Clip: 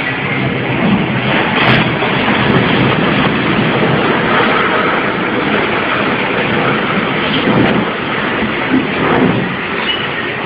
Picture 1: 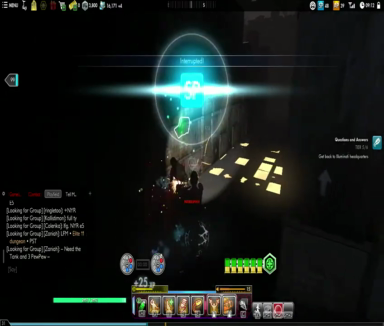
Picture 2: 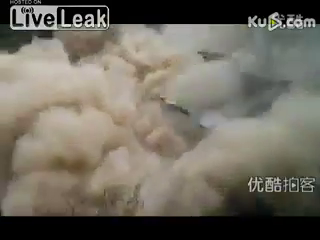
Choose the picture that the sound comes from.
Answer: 2